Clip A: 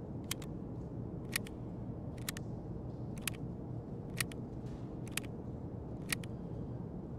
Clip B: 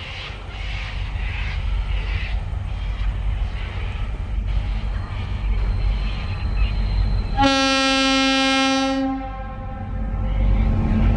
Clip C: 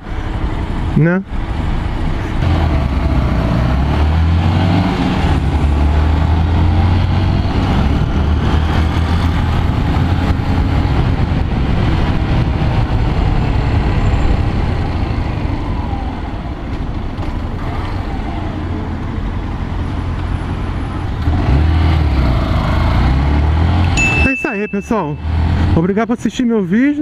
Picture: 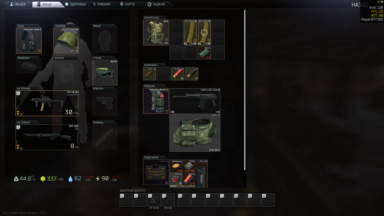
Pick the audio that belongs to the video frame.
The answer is A